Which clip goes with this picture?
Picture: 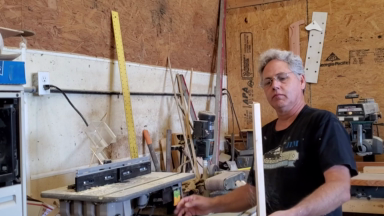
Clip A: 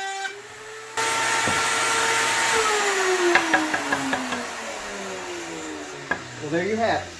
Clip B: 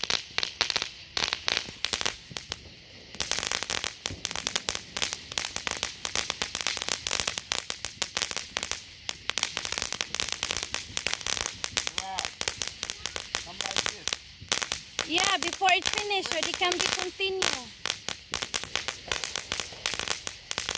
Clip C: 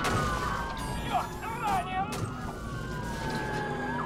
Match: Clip A